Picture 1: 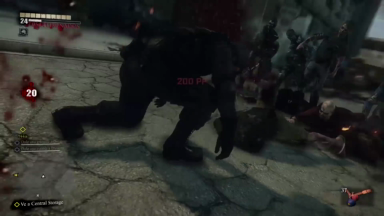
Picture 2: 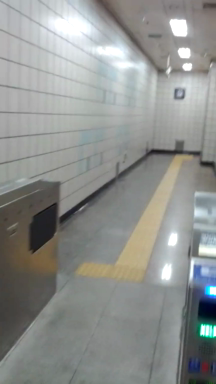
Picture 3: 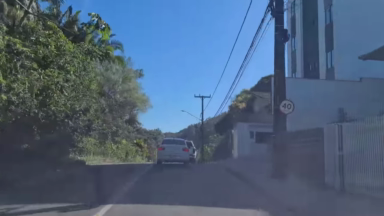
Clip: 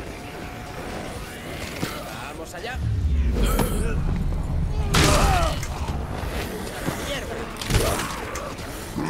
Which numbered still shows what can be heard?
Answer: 1